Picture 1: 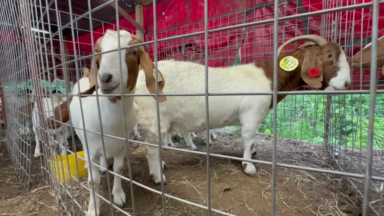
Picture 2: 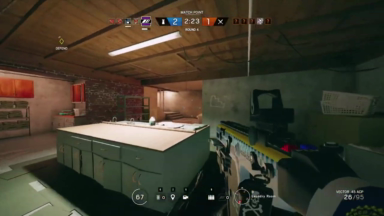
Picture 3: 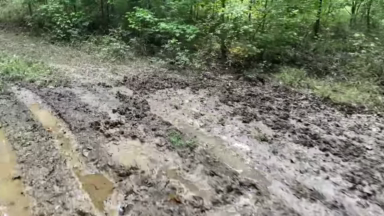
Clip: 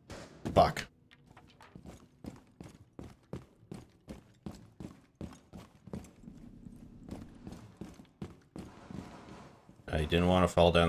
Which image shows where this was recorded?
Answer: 2